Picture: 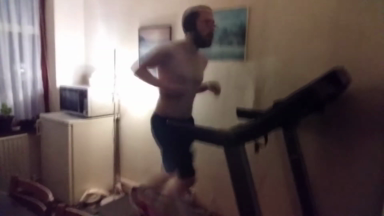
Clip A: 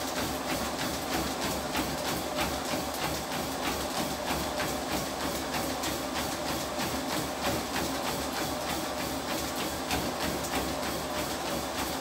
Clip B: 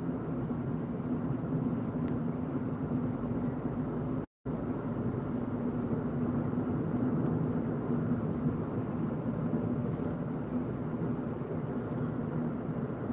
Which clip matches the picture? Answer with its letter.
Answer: A